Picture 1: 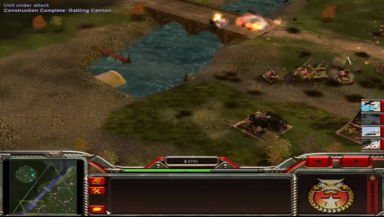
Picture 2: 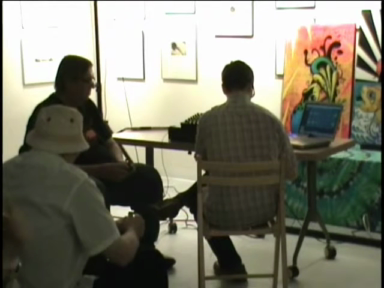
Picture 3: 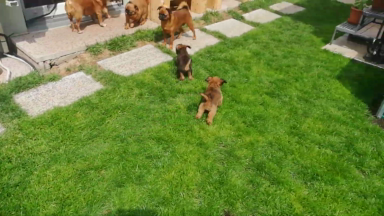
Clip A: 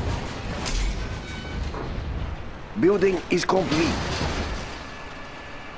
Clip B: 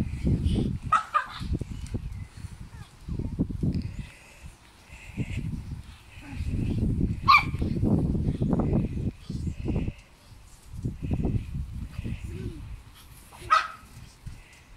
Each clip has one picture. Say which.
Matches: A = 1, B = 3